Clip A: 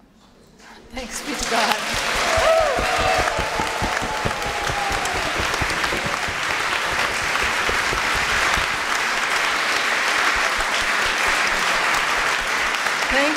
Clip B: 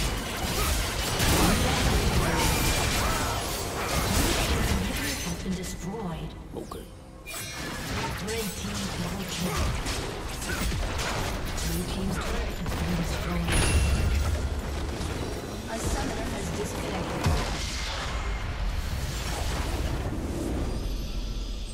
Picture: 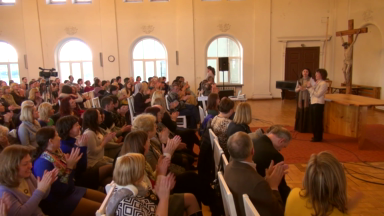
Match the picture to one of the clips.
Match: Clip A